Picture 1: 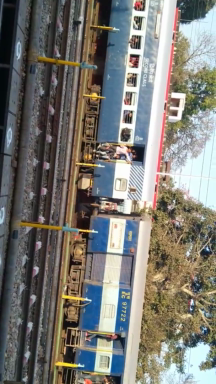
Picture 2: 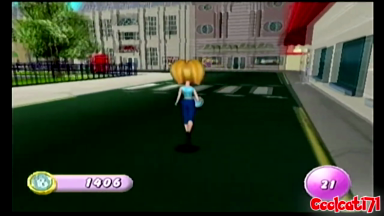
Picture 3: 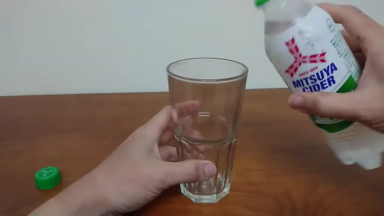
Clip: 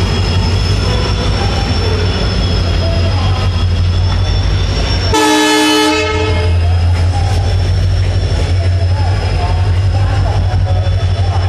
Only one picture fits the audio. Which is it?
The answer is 1